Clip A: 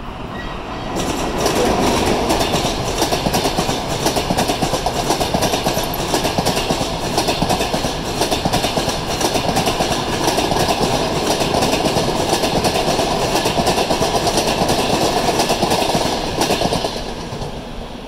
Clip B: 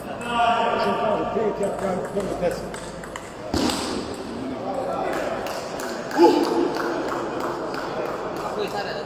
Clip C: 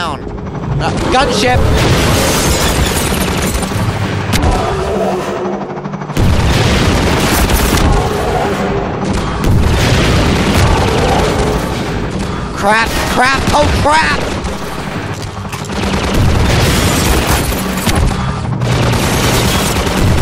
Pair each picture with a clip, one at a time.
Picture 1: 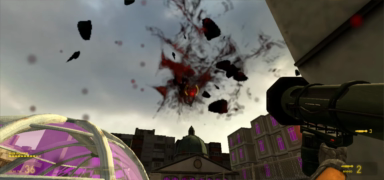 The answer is C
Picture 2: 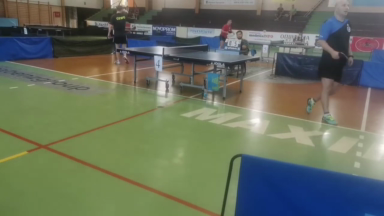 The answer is B